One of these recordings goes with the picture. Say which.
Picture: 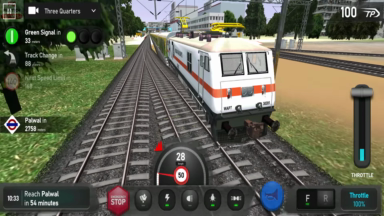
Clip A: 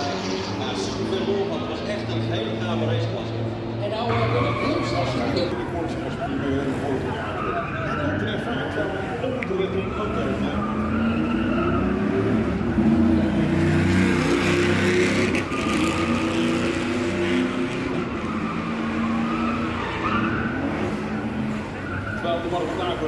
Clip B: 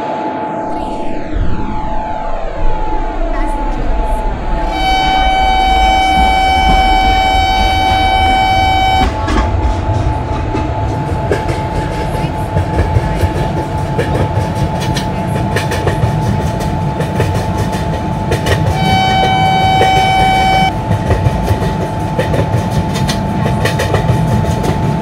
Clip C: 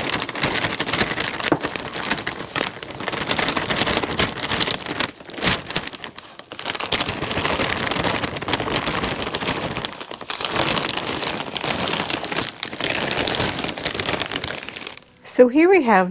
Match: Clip B